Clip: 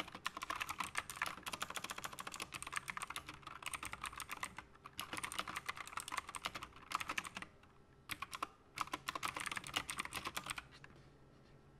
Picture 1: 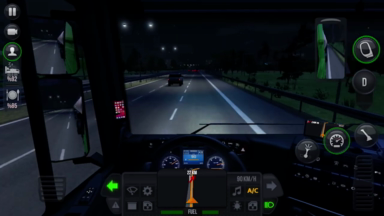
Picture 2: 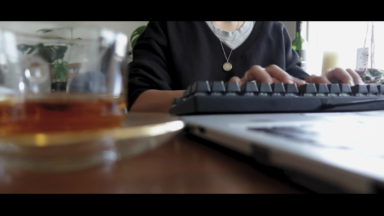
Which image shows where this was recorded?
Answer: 2